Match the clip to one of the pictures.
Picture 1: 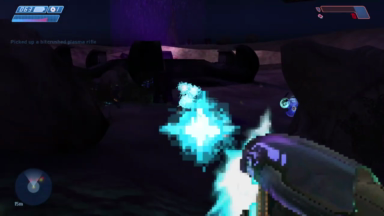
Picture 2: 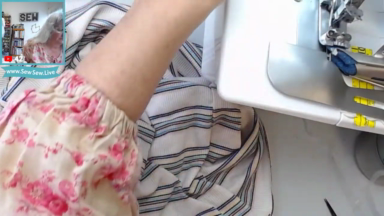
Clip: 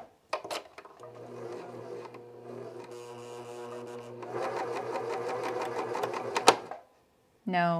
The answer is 2